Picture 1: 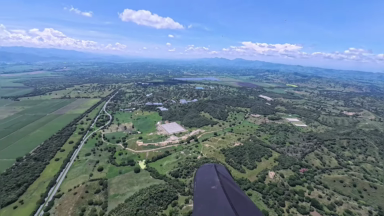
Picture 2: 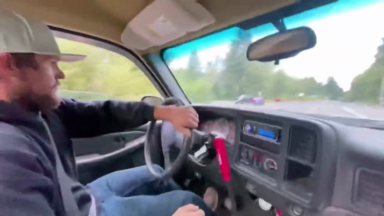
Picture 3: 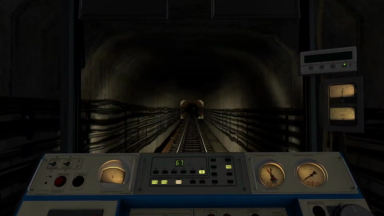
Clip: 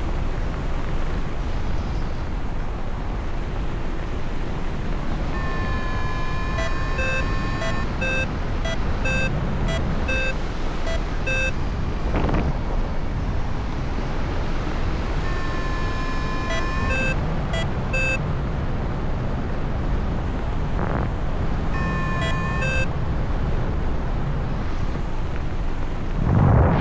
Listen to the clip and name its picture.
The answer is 1